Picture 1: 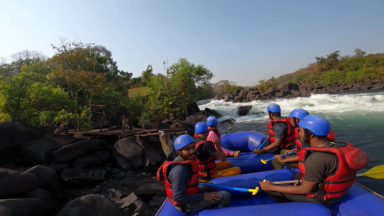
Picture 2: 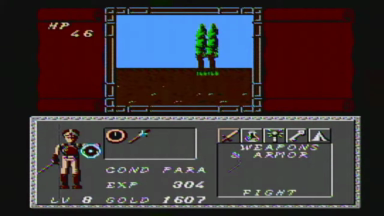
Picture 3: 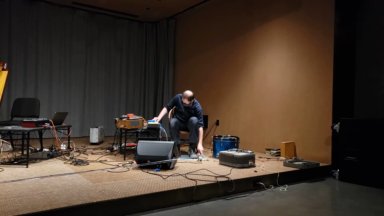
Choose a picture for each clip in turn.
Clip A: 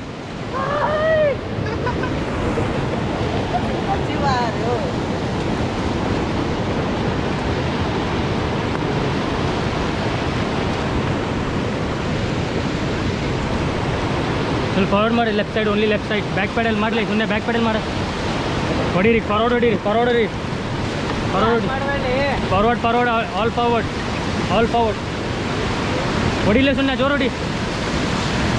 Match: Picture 1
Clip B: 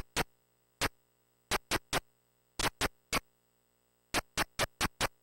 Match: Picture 2